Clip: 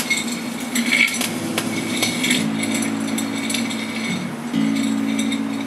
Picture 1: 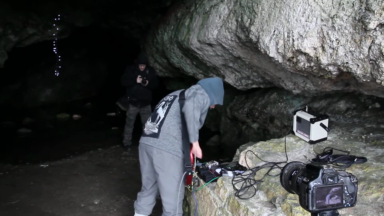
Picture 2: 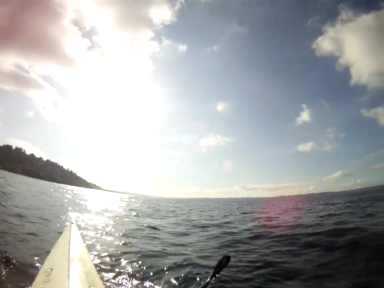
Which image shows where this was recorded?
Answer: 1